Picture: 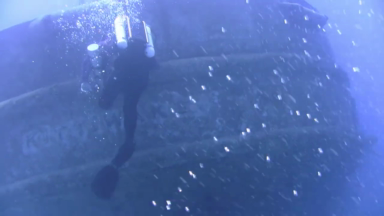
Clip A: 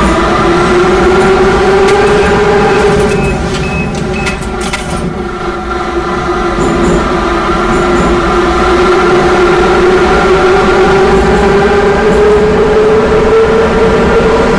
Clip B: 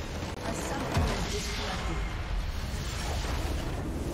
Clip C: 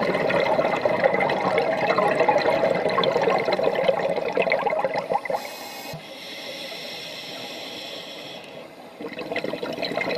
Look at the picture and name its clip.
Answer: C